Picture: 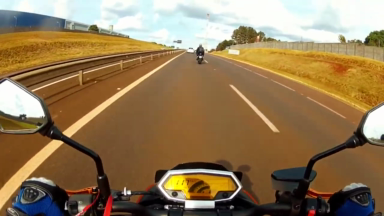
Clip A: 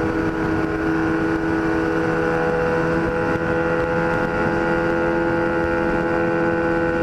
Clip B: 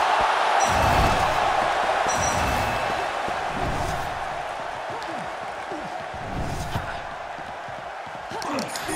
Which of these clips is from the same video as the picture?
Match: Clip A